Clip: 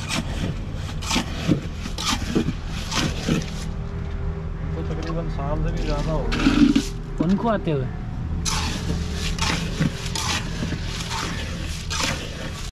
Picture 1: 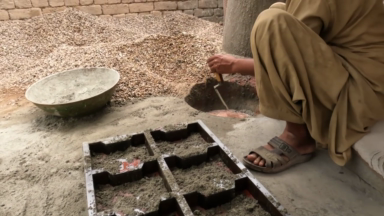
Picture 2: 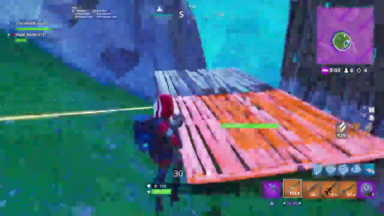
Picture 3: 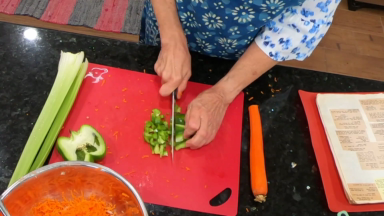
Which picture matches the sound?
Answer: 1